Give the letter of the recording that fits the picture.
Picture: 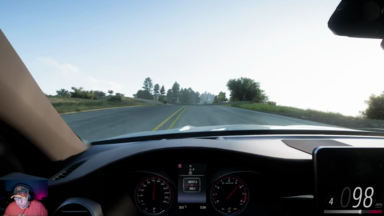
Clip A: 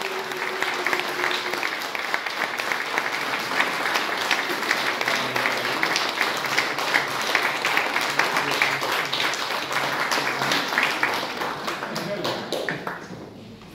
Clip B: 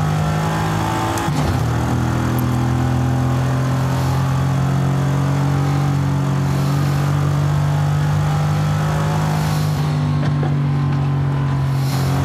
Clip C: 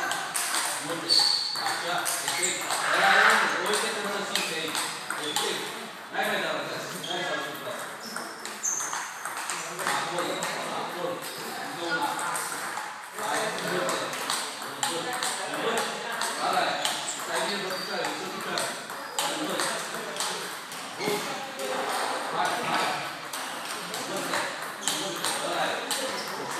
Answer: B